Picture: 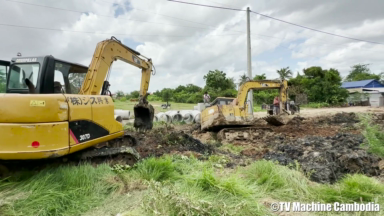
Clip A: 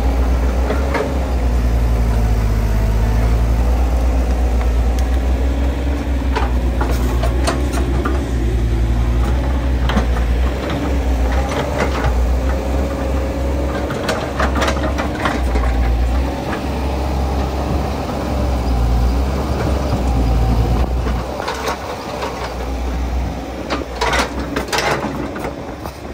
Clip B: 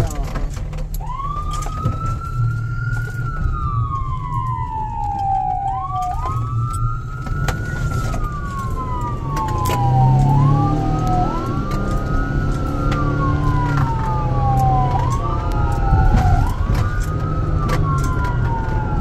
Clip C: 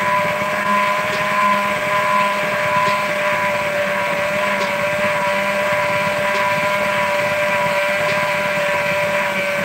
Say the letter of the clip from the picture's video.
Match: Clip A